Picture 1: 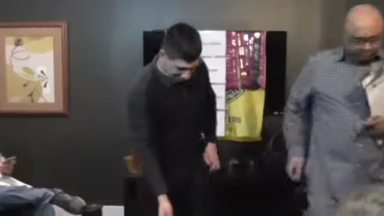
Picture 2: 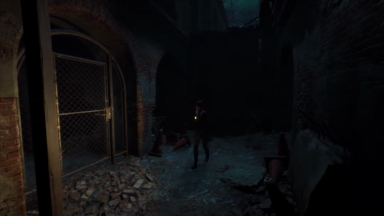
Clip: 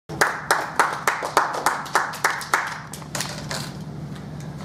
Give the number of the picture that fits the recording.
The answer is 1